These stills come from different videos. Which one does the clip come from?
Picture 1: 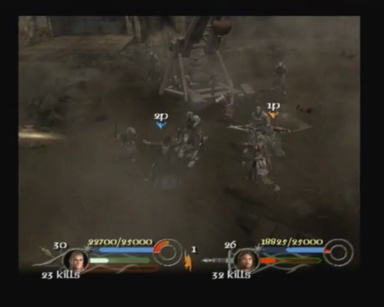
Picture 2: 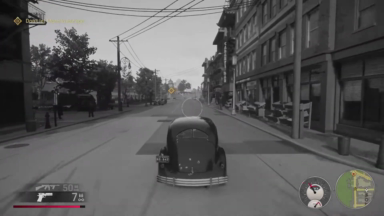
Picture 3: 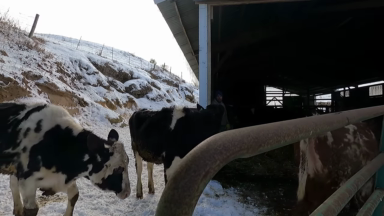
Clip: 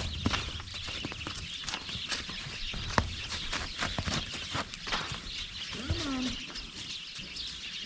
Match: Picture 3